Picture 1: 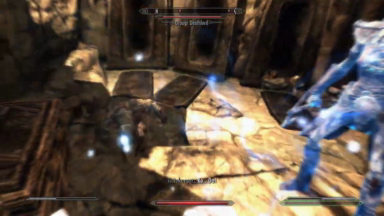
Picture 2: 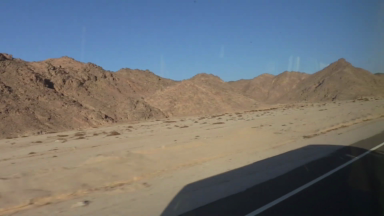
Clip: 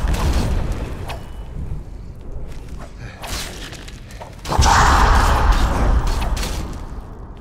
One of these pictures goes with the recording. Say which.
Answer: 1